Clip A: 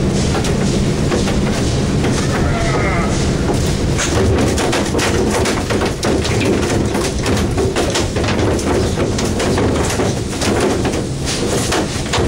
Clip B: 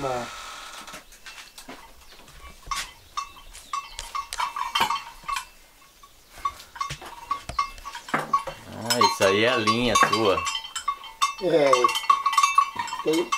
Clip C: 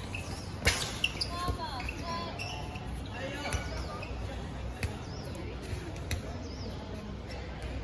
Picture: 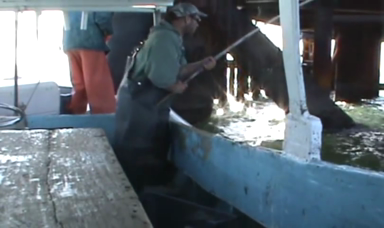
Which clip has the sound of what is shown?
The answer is A